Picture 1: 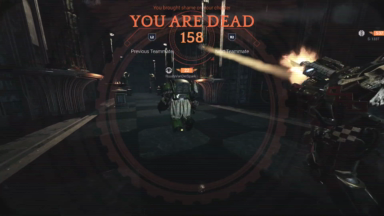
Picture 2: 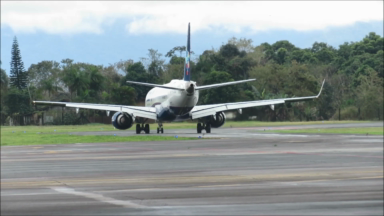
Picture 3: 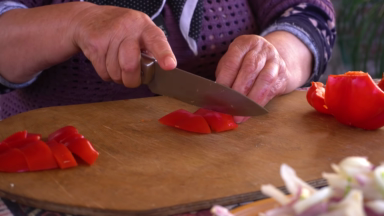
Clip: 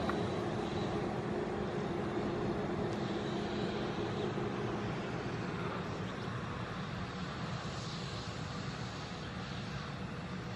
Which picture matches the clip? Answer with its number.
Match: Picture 2